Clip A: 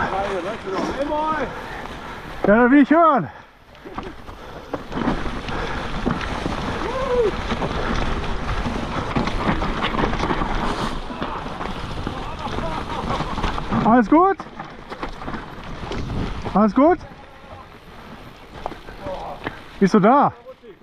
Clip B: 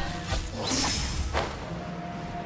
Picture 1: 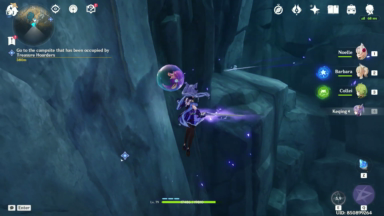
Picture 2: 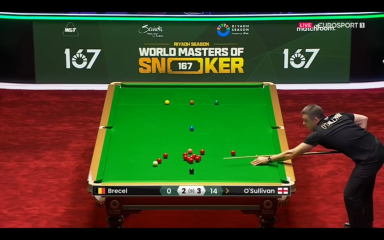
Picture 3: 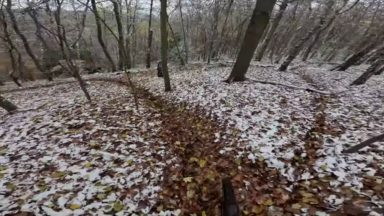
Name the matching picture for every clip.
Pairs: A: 3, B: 1